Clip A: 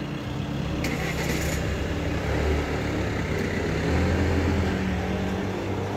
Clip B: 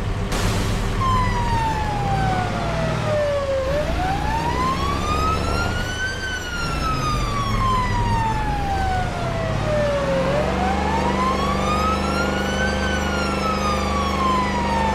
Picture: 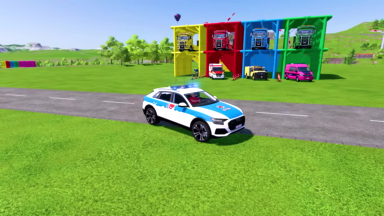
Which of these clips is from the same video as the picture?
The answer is B